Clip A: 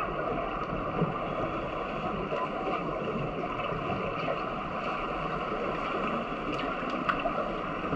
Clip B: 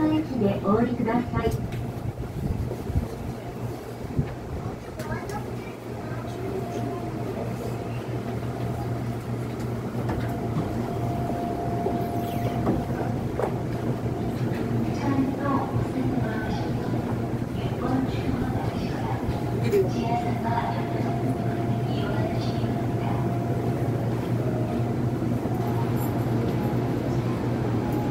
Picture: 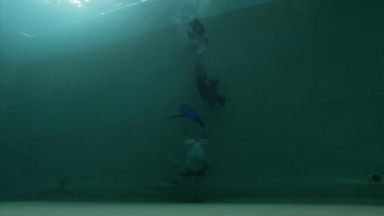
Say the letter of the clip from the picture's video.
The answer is A